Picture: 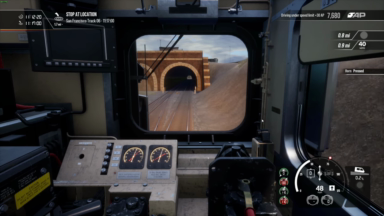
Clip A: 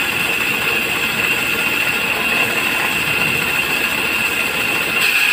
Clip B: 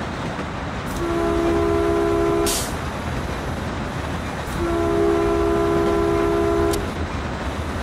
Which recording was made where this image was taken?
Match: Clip B